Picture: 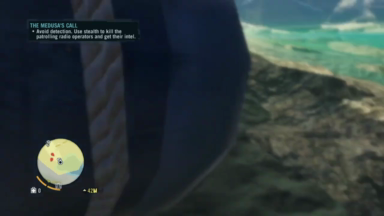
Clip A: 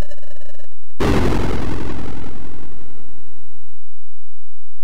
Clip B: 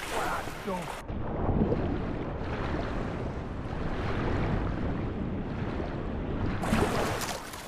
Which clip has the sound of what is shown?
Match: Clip B